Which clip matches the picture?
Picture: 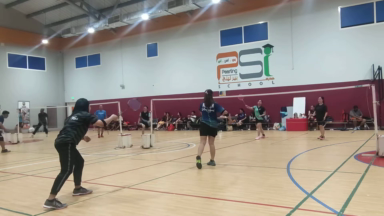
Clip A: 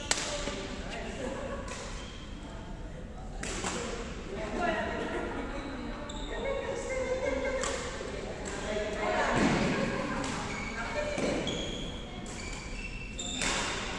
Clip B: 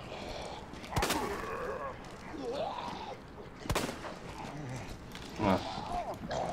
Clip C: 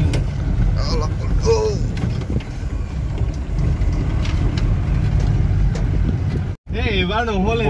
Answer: A